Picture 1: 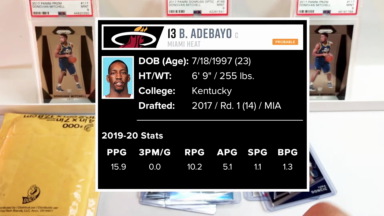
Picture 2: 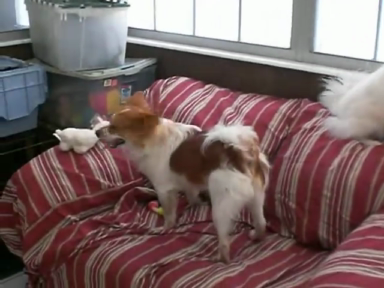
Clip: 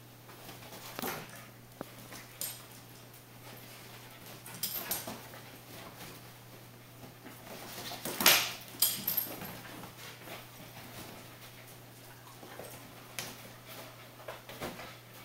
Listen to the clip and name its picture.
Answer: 2